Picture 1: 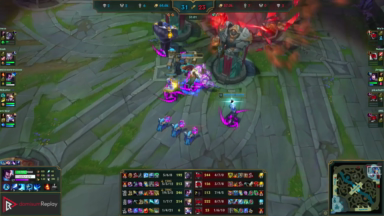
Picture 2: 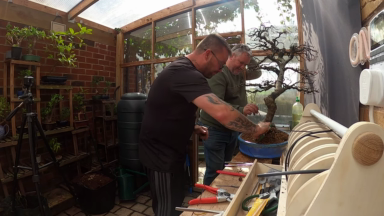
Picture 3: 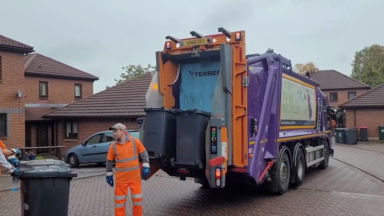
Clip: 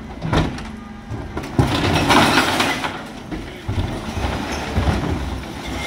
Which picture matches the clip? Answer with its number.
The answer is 3